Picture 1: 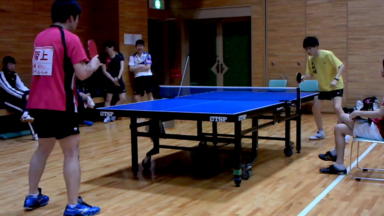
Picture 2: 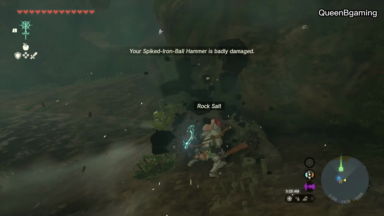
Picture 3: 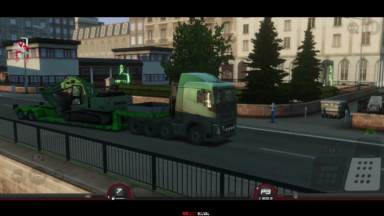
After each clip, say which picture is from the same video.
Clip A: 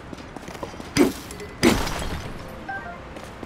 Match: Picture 2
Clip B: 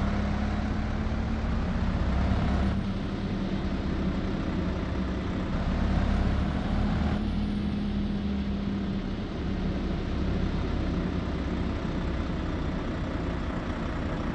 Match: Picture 3